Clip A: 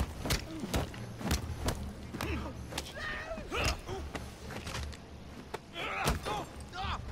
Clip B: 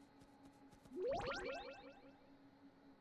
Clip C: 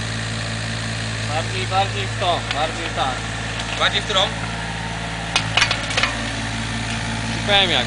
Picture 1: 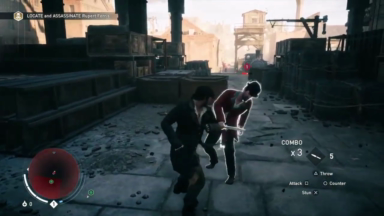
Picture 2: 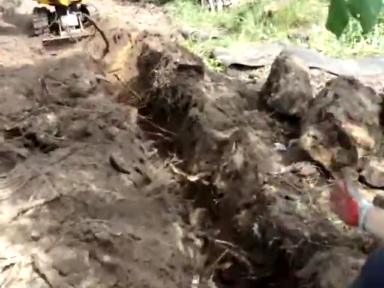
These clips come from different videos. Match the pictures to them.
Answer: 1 A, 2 C